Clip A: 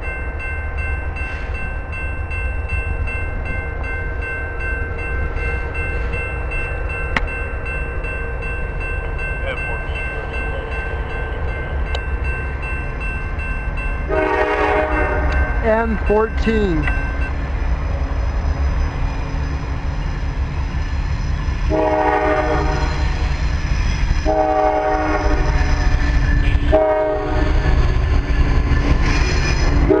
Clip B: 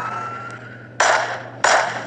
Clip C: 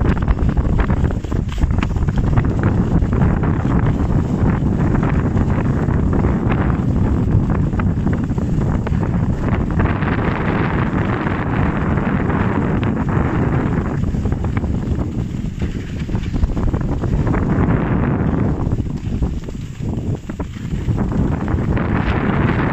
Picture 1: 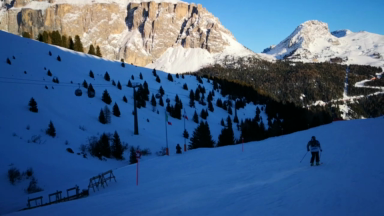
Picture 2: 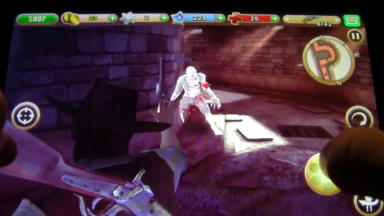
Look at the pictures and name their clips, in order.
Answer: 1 C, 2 B